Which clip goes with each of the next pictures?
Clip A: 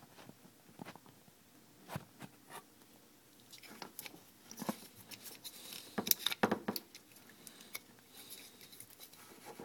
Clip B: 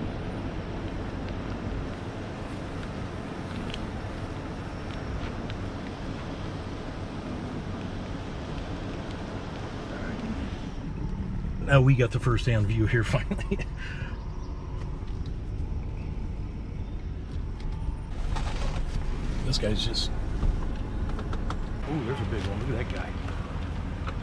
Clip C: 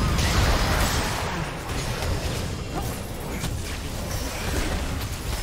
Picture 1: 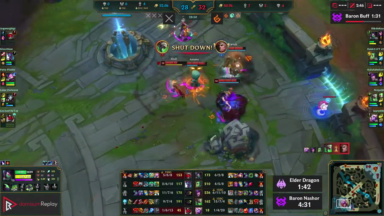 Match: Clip C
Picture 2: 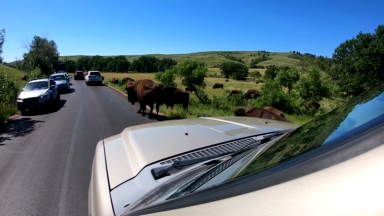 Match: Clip B